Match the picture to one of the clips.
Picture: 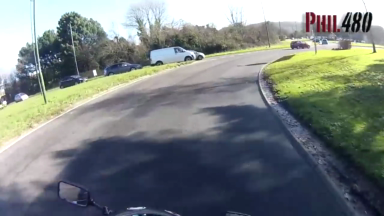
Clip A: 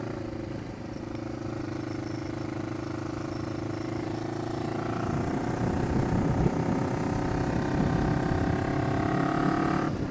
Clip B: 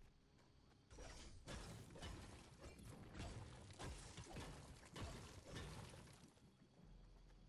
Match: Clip A